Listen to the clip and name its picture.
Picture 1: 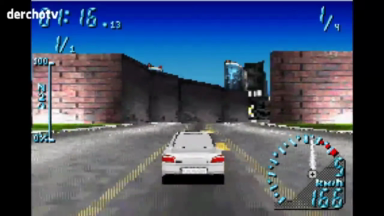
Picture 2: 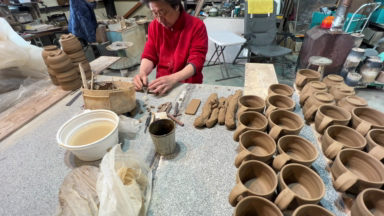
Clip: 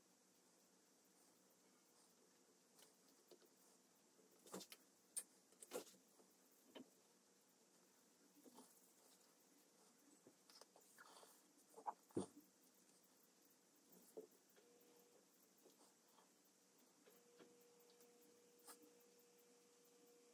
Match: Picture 2